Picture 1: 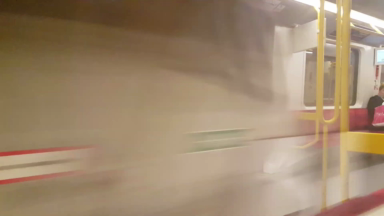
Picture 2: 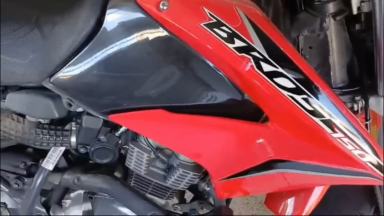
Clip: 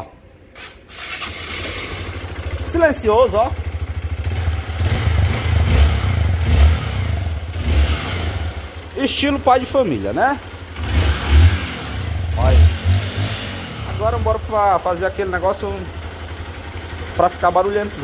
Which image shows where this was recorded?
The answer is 2